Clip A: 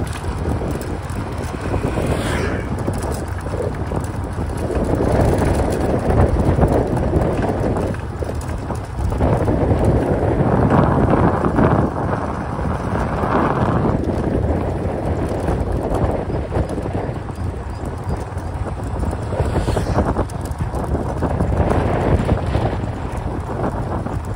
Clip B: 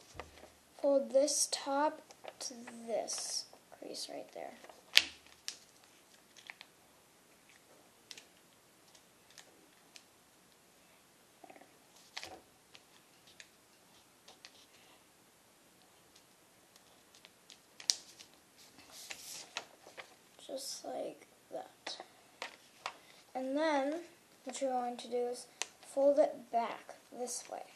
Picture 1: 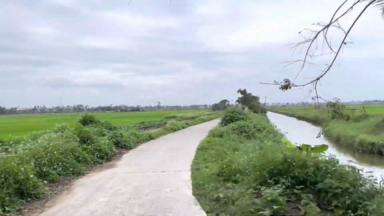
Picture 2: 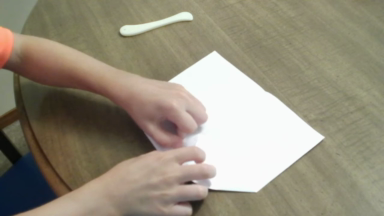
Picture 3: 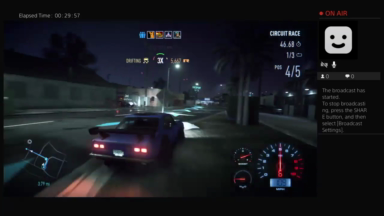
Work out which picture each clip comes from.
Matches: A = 1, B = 2